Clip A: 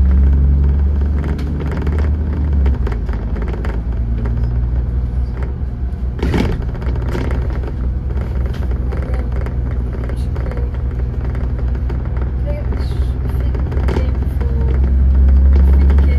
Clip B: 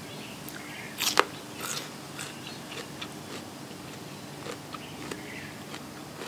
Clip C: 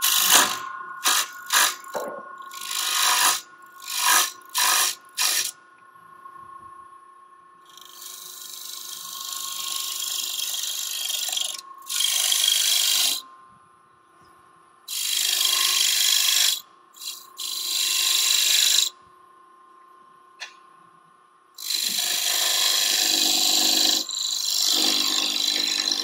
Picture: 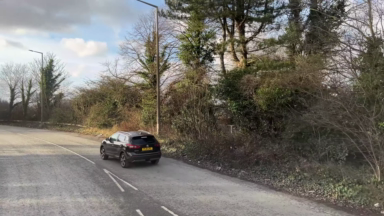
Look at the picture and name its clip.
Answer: A